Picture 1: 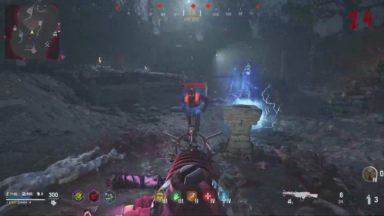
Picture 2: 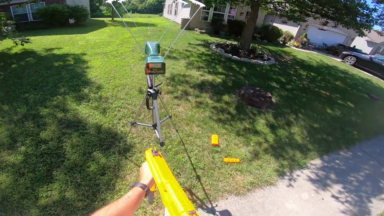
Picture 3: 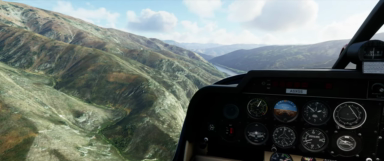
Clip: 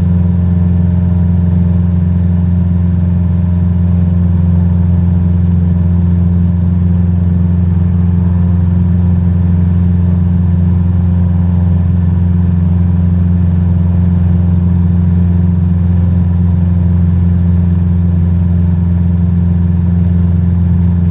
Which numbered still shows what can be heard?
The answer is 3